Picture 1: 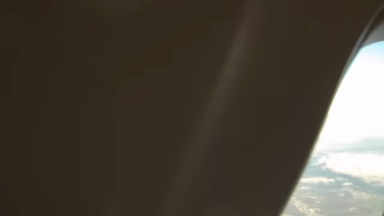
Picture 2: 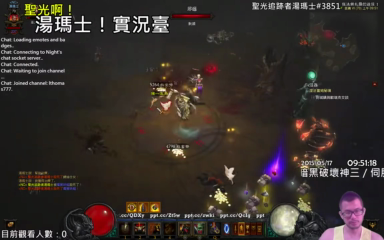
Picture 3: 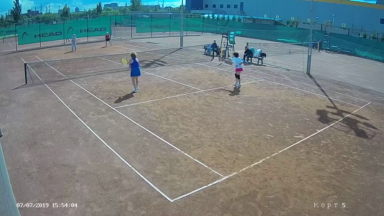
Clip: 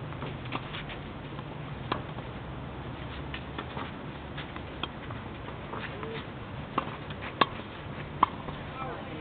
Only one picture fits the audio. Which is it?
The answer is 3